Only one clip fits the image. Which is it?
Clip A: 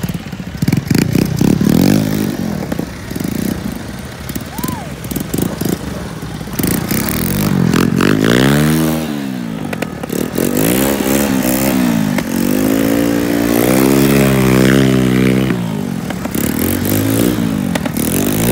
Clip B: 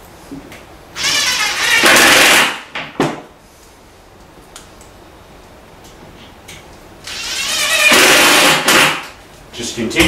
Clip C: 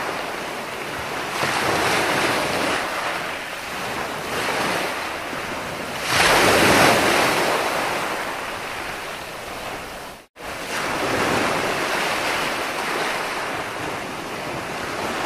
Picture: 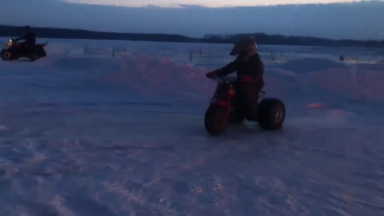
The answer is A